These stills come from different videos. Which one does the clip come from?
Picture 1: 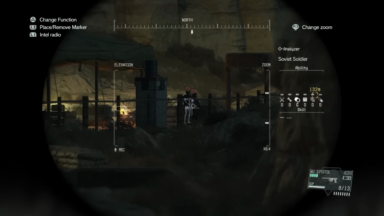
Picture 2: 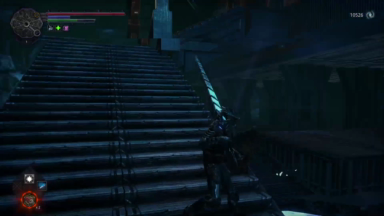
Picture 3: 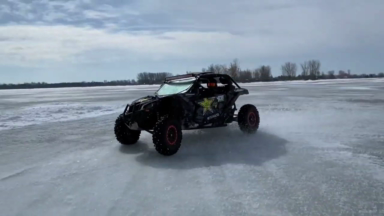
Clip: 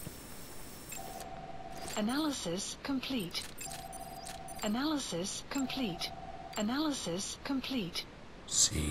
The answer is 1